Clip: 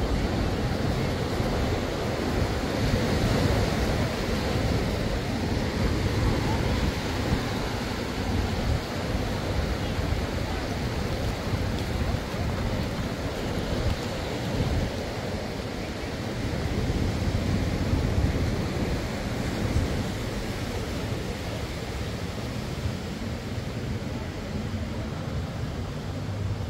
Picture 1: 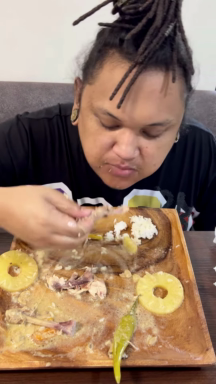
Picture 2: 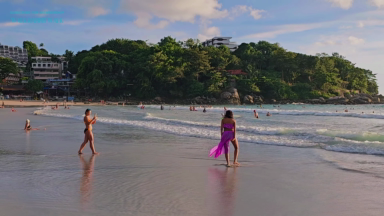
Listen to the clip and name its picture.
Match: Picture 2